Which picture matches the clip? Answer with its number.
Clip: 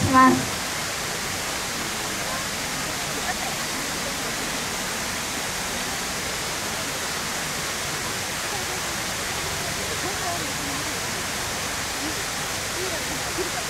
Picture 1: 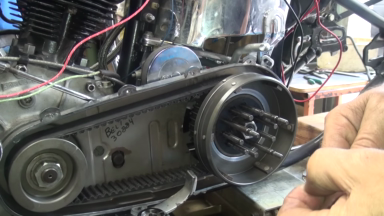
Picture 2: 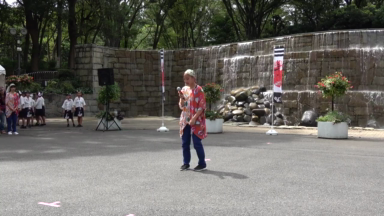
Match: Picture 2